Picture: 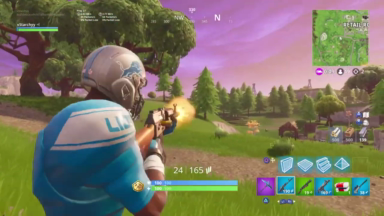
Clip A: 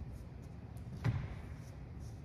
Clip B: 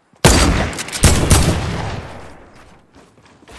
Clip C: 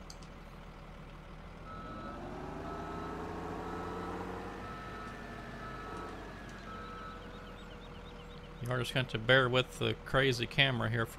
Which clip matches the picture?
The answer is B